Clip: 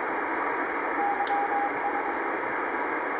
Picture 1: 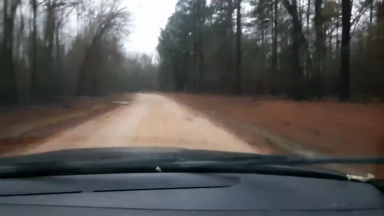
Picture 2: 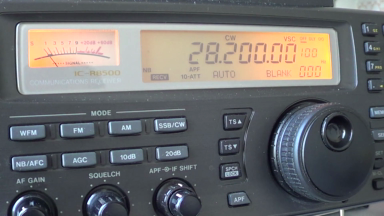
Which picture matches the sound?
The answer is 2